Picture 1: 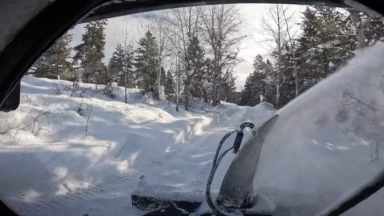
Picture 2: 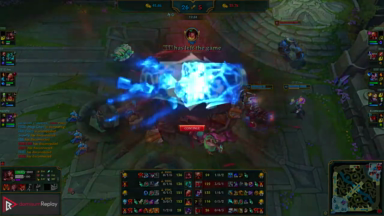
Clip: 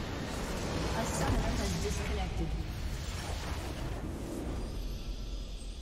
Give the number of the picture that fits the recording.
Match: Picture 2